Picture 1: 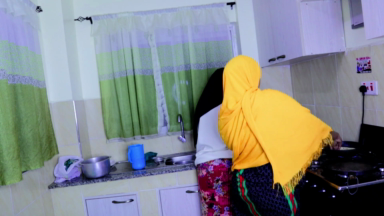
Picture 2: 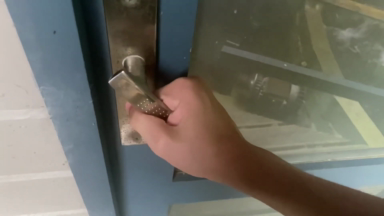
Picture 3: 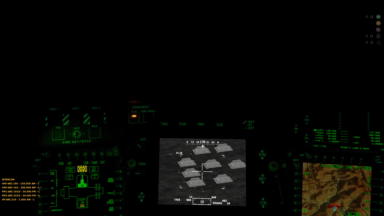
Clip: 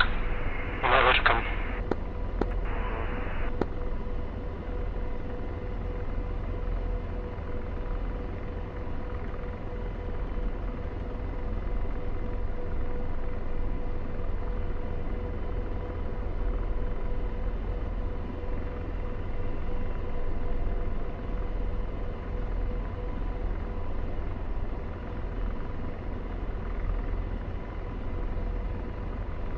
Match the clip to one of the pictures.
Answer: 3